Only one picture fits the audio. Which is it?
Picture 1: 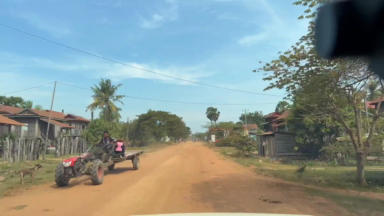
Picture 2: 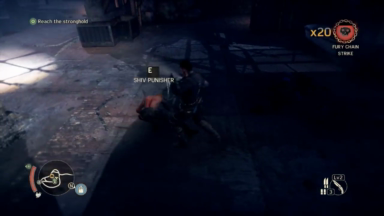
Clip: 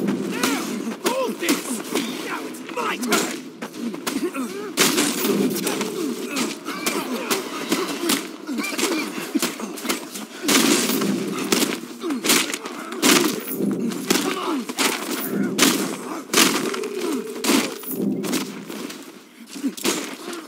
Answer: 2